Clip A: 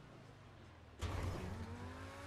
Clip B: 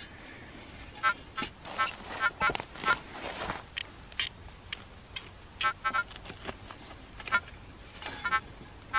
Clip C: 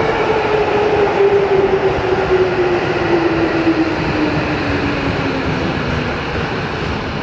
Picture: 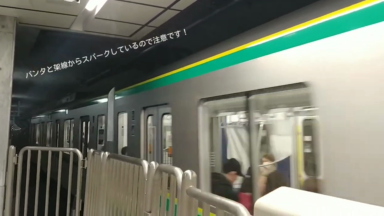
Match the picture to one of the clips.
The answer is C